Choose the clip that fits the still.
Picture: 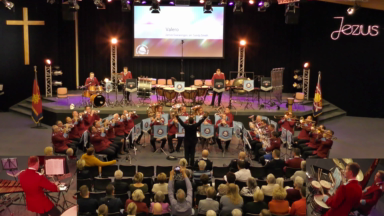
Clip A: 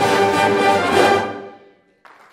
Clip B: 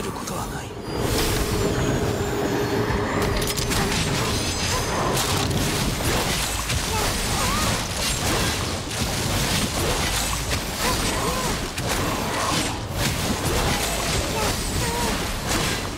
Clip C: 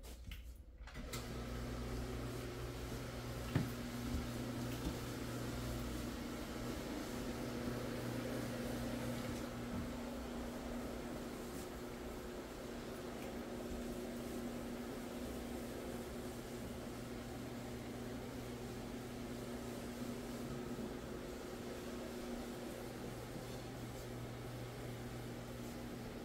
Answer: A